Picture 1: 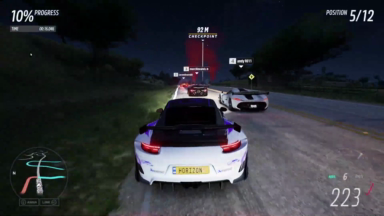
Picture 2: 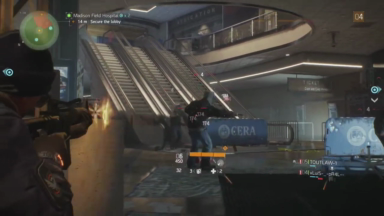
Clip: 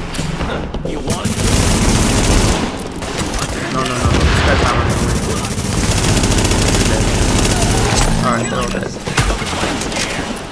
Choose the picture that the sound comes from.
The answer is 2